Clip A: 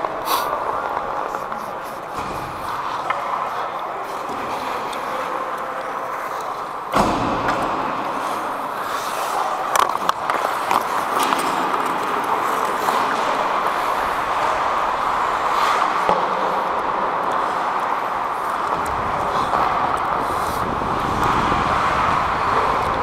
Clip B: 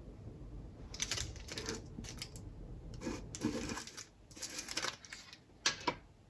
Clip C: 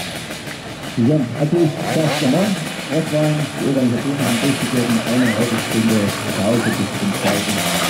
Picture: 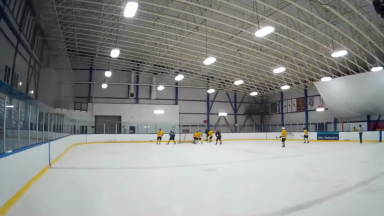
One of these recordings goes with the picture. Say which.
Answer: A